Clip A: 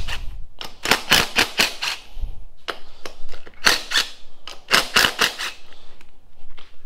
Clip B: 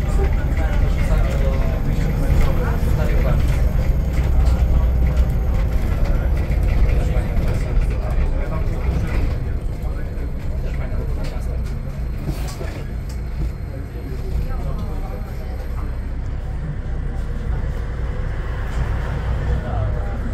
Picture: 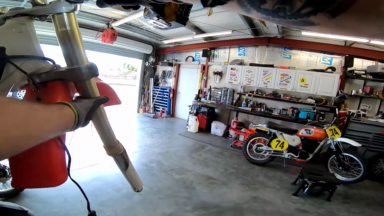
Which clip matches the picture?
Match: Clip A